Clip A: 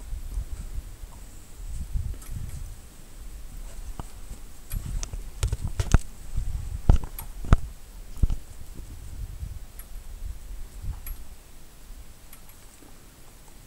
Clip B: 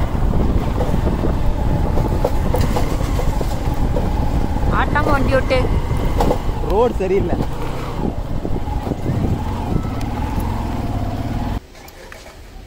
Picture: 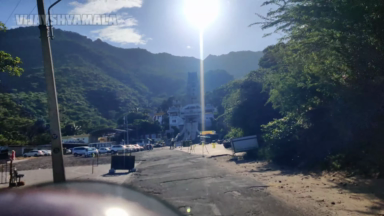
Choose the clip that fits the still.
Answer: B